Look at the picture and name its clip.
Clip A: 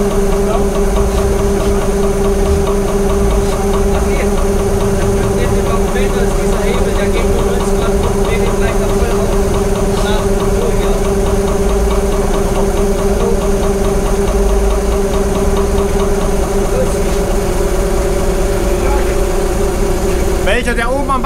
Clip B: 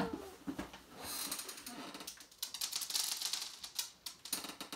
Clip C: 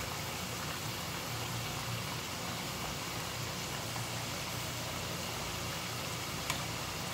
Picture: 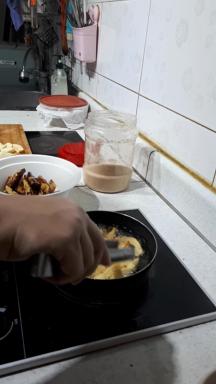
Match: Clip C